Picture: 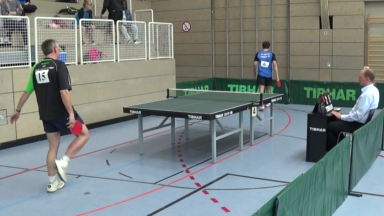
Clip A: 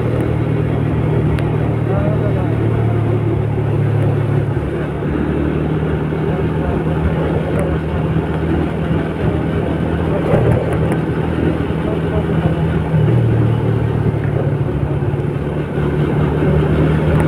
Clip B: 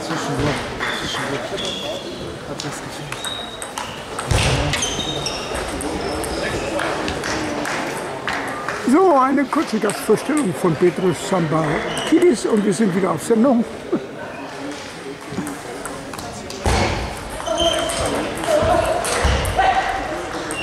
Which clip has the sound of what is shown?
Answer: B